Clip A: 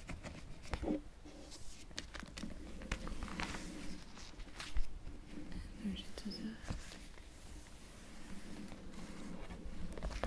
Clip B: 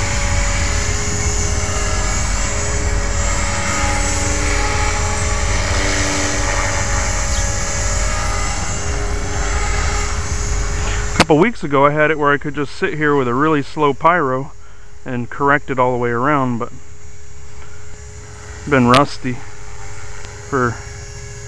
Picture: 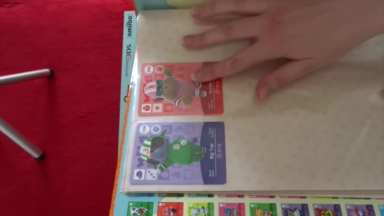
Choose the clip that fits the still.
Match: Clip A